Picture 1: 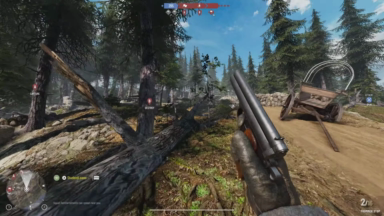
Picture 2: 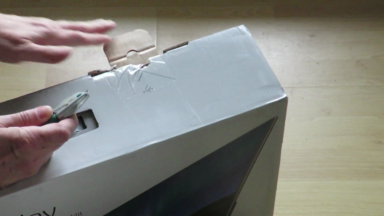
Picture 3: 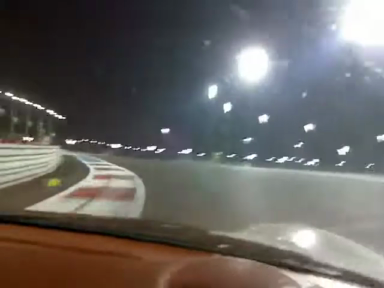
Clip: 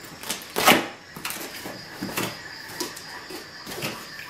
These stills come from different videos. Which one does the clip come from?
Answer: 2